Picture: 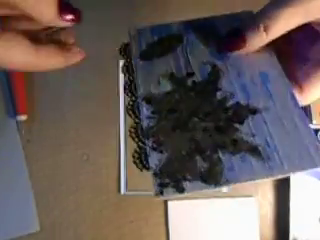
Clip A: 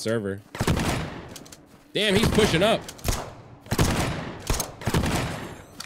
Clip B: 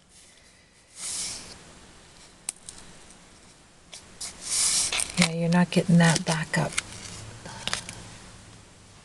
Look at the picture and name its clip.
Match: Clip B